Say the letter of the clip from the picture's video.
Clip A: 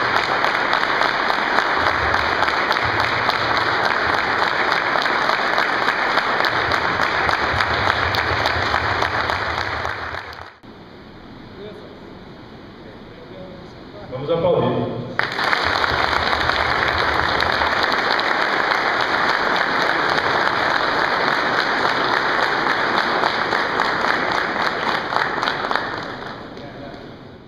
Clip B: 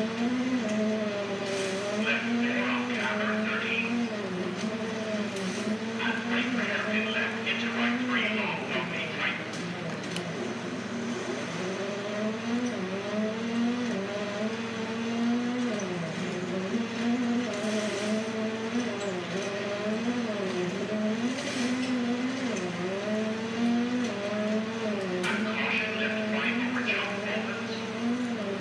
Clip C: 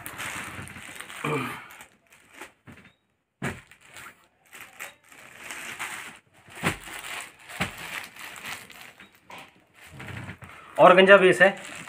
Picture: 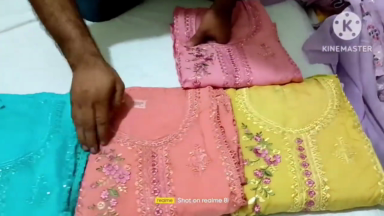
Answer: C